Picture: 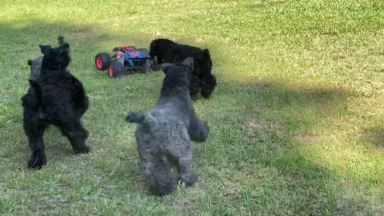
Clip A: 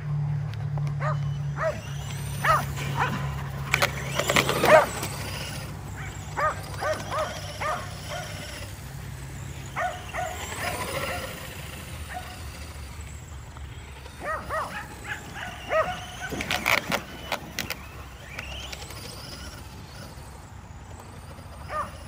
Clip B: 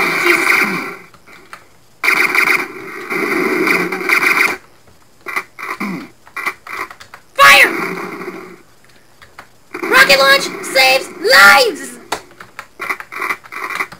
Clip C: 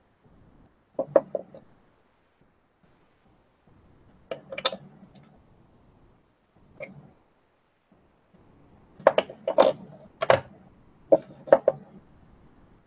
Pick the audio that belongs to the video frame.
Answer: A